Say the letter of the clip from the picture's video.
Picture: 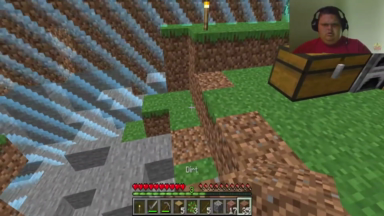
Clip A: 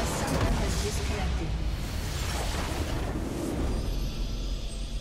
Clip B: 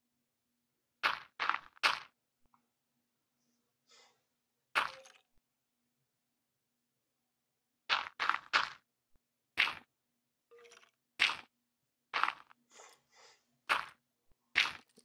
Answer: B